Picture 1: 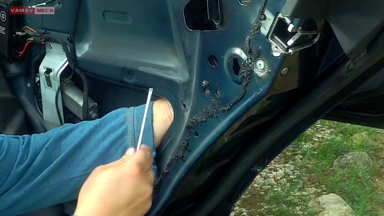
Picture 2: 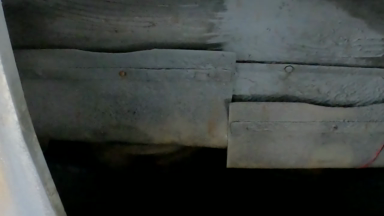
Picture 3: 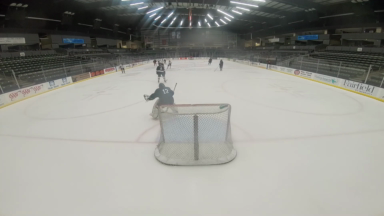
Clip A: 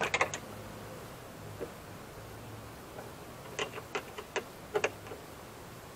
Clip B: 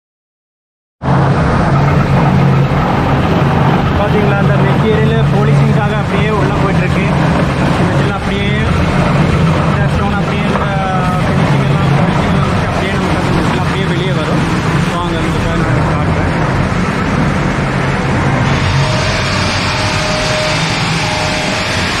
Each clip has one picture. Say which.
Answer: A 1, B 2